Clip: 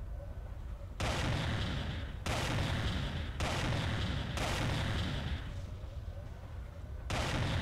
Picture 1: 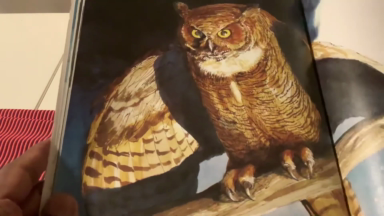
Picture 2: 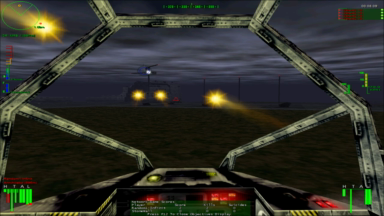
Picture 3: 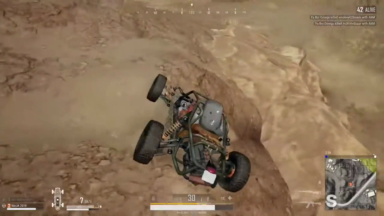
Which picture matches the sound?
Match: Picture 2